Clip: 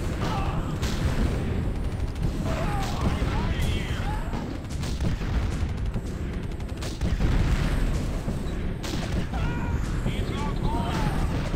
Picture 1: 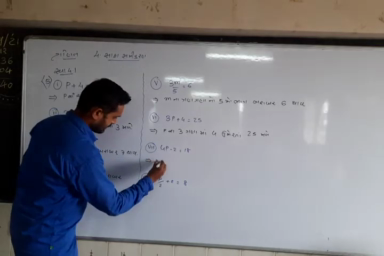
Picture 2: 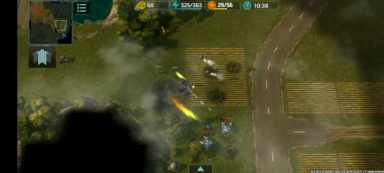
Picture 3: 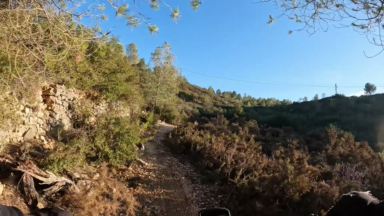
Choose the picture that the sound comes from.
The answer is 2